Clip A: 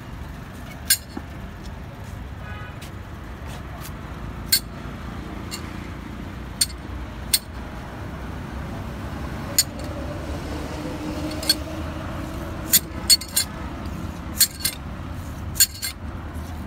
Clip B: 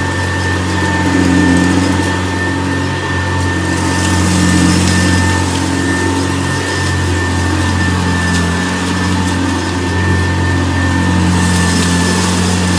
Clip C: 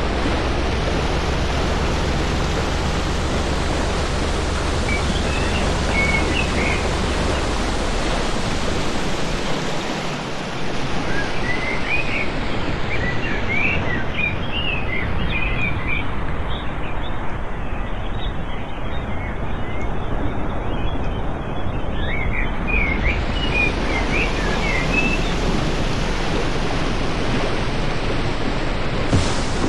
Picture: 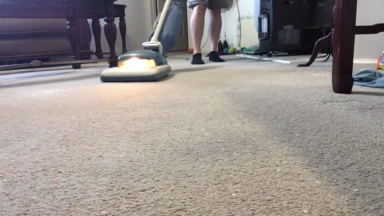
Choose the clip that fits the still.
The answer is B